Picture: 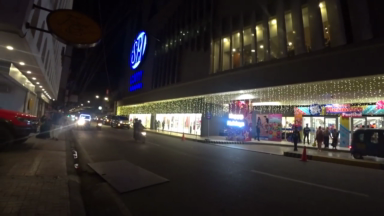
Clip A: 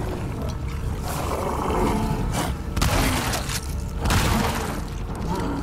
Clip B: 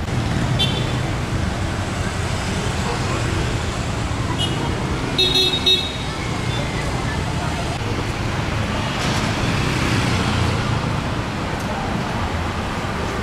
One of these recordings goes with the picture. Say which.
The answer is B